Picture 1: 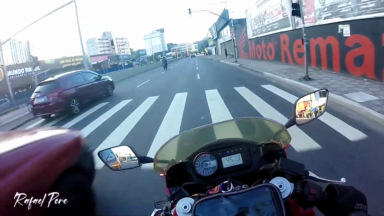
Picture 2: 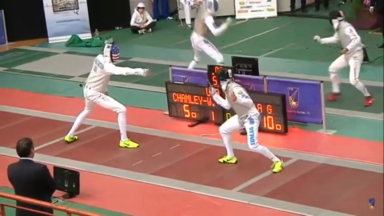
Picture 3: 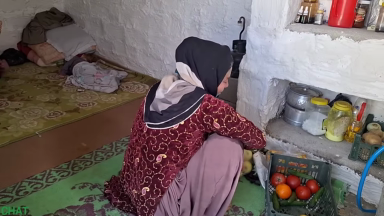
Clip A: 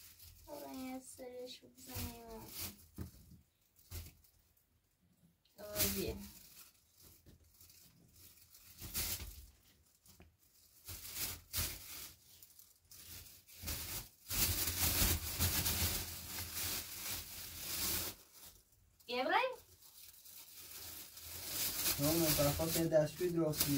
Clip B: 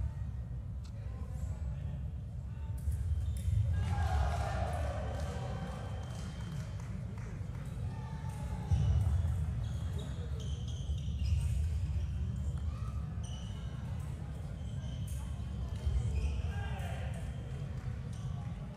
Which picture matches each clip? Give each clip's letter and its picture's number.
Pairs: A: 3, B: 2